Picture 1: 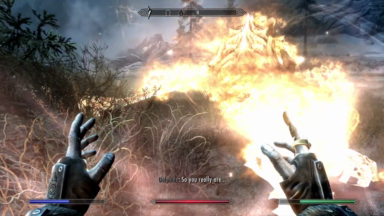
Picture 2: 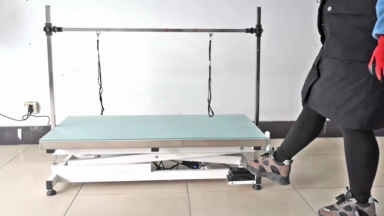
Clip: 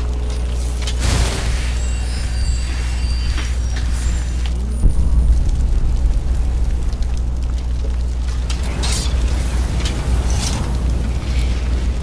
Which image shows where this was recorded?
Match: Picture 1